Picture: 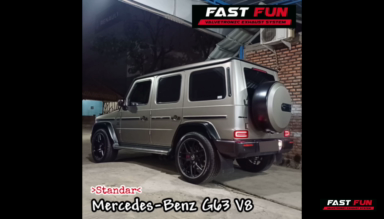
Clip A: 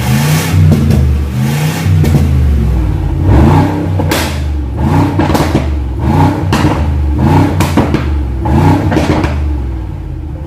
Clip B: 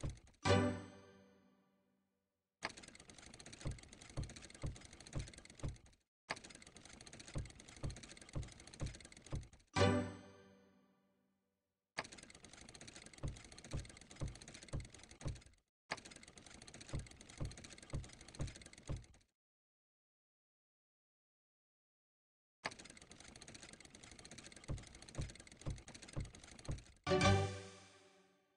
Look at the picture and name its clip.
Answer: A